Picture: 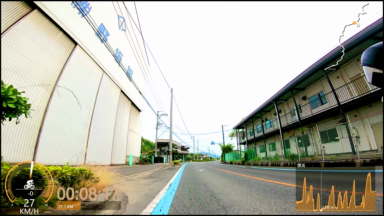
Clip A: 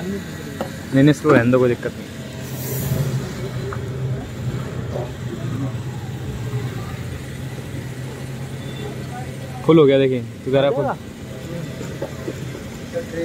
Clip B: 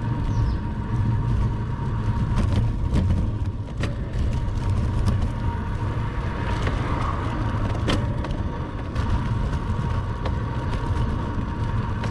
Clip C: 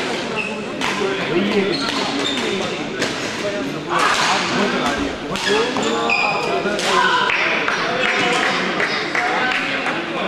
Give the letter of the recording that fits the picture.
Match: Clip B